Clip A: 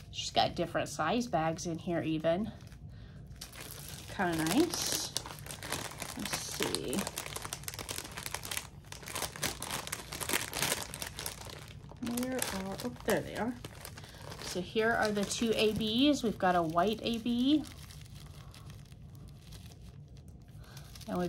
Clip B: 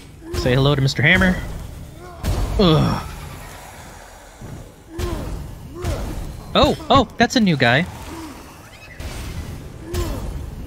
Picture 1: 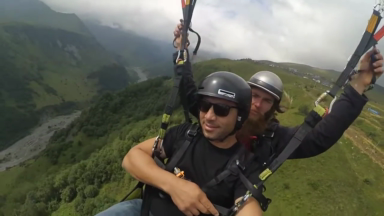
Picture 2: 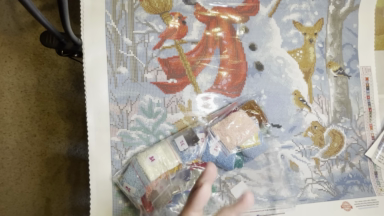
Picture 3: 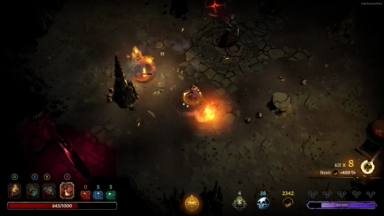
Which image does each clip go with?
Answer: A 2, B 3